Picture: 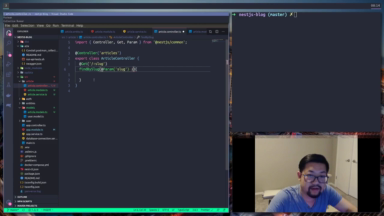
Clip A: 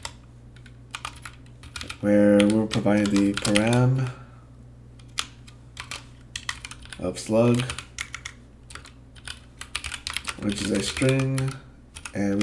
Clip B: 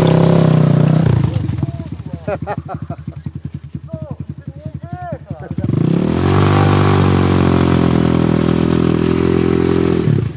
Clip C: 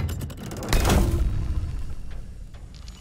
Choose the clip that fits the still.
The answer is A